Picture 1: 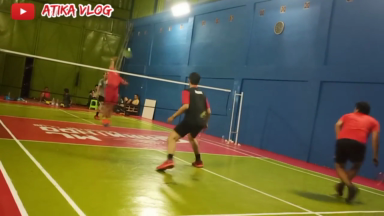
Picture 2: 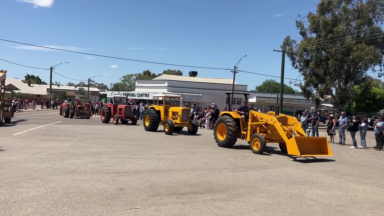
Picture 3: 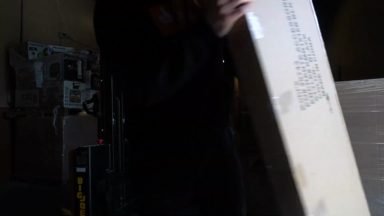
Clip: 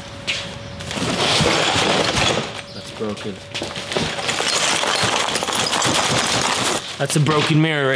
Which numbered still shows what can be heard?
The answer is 3